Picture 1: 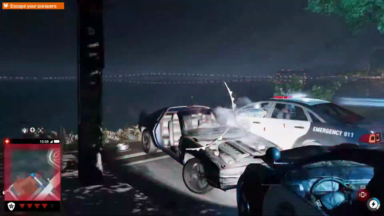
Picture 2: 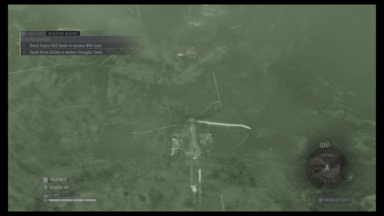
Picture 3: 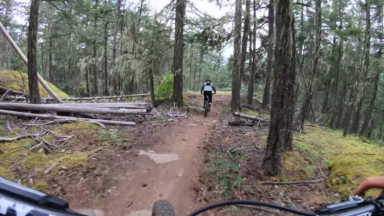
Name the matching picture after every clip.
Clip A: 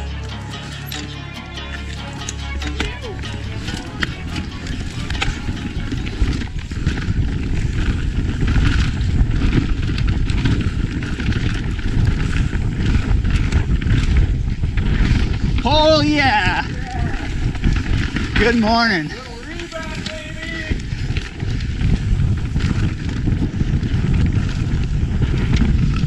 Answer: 3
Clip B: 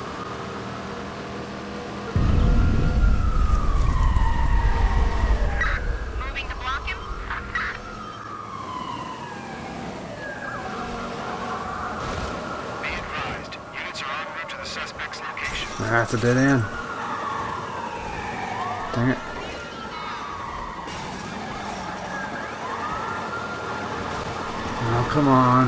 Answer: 1